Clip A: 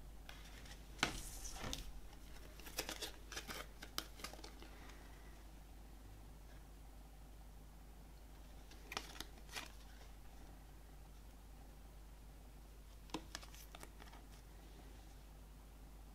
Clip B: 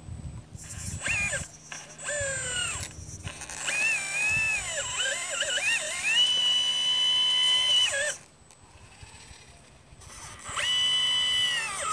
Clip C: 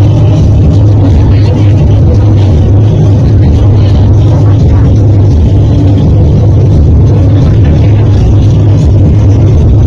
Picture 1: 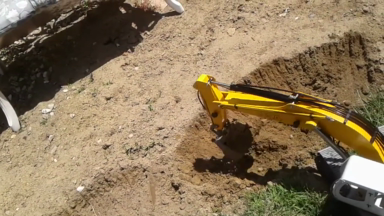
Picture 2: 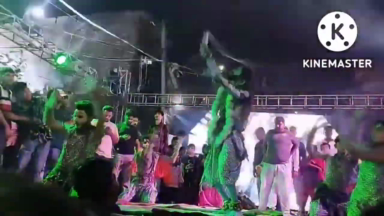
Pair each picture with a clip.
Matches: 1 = B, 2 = C